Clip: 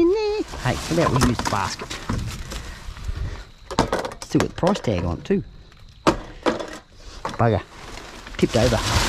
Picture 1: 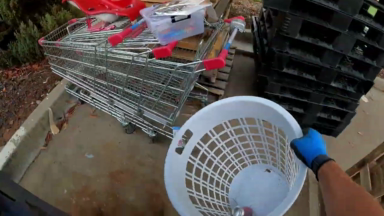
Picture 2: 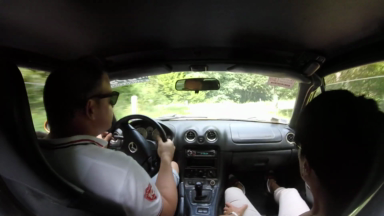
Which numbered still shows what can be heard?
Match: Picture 1